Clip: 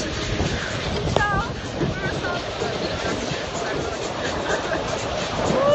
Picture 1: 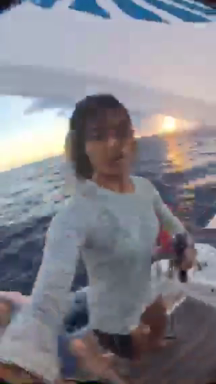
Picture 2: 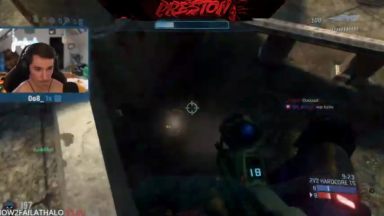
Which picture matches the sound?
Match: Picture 1